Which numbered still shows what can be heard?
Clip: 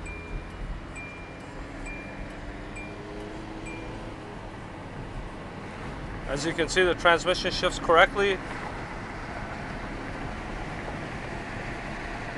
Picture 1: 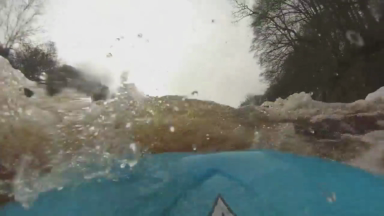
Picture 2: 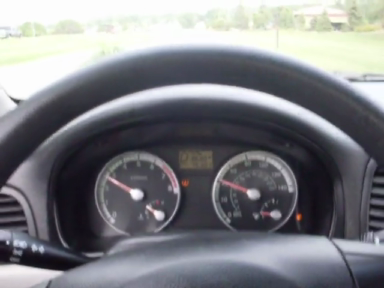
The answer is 2